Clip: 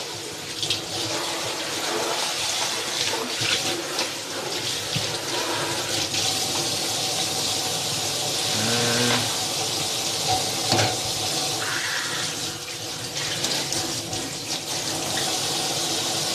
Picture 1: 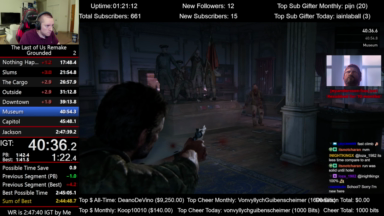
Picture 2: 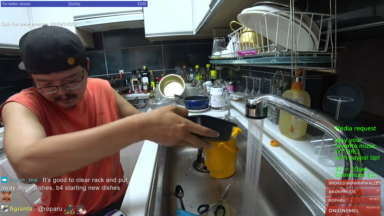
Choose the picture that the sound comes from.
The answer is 2